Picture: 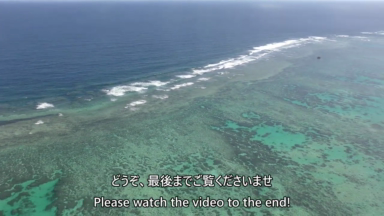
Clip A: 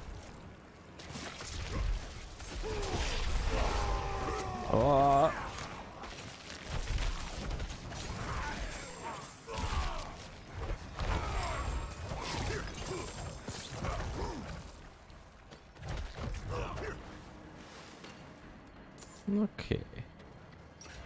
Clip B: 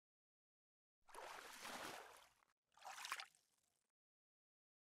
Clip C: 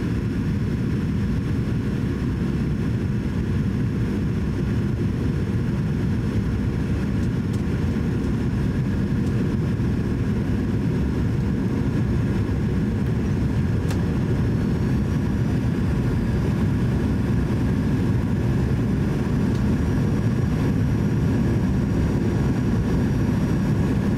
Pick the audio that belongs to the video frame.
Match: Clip C